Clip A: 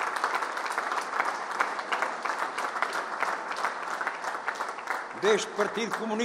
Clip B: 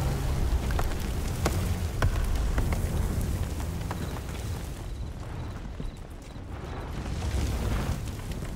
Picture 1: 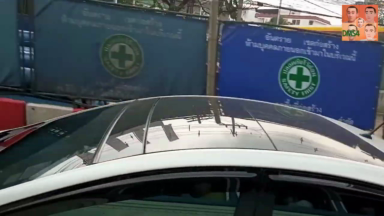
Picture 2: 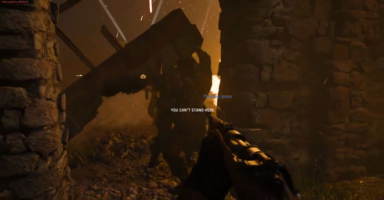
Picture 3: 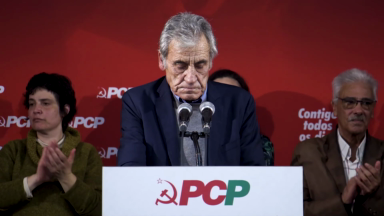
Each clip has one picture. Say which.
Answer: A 3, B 2